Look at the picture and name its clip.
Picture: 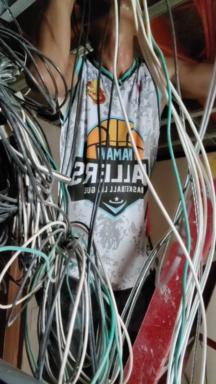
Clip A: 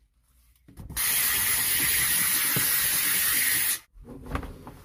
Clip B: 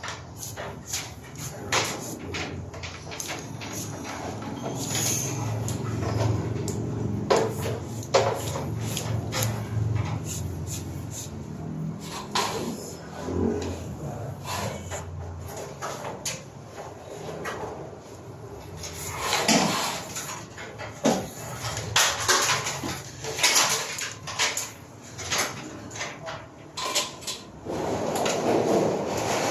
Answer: B